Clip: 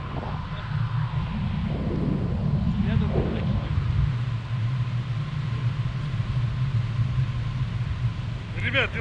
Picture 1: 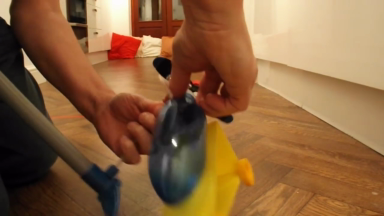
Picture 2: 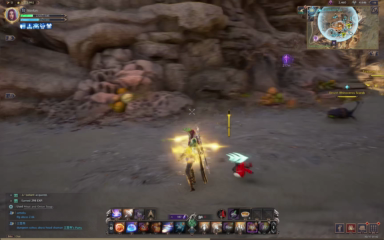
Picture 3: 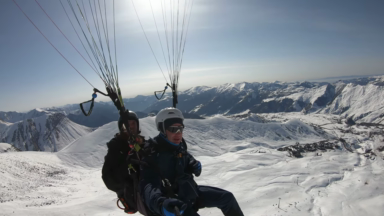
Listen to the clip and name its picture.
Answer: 3